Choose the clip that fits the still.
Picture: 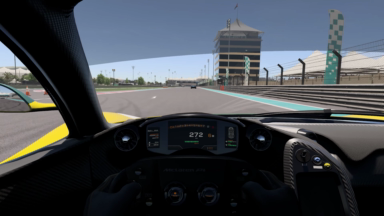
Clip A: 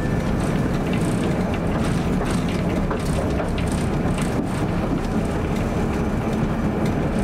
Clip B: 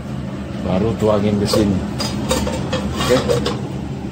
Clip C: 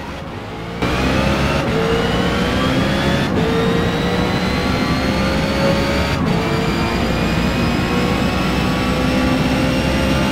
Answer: C